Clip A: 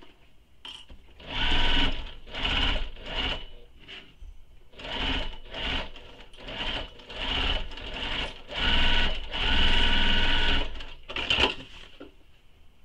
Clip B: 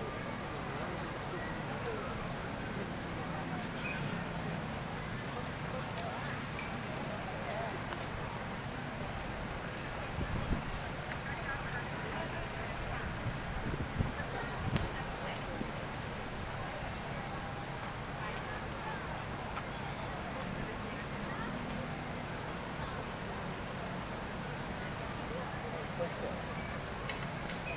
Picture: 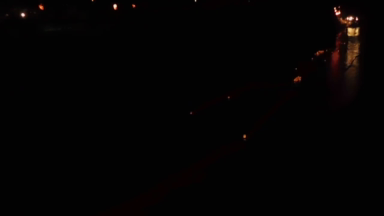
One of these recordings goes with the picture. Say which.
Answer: B